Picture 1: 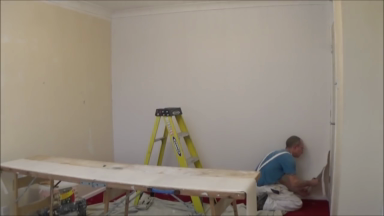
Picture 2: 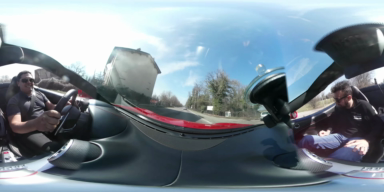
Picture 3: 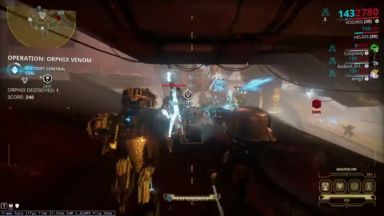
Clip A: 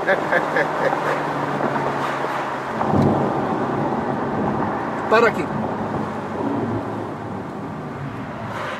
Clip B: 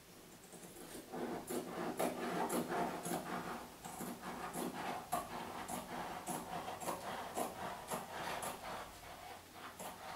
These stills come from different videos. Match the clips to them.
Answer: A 2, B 1